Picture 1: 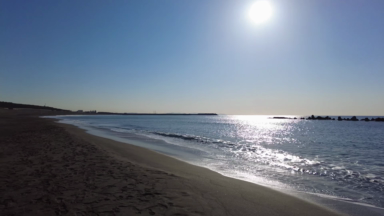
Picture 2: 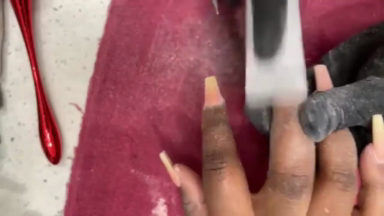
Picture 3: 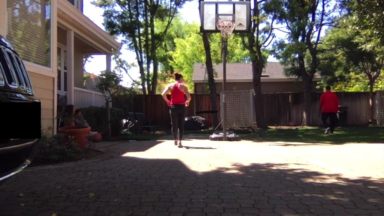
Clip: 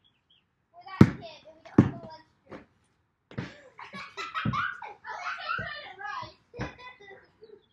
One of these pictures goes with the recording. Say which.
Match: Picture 3